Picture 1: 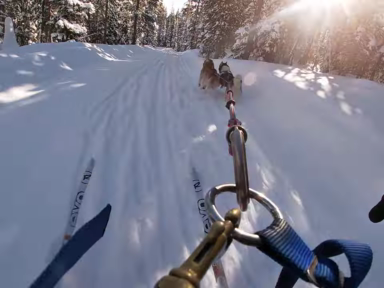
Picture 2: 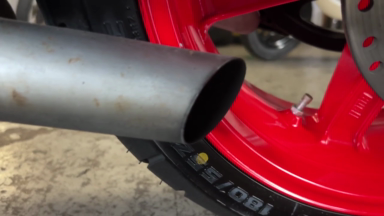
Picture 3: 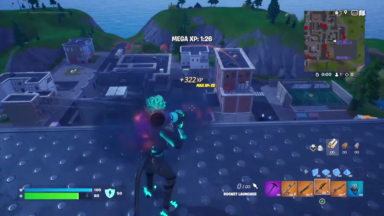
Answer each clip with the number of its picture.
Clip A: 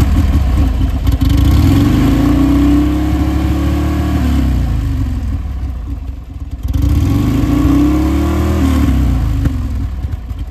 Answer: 2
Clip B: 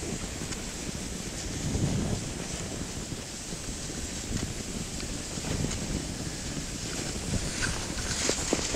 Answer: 1